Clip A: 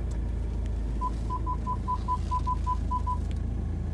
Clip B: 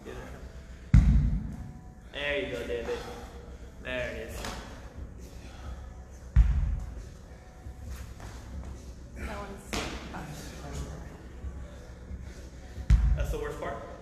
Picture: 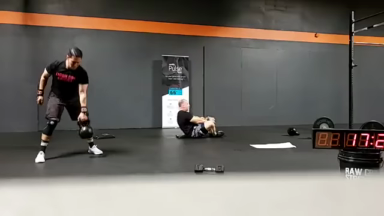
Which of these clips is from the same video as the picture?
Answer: B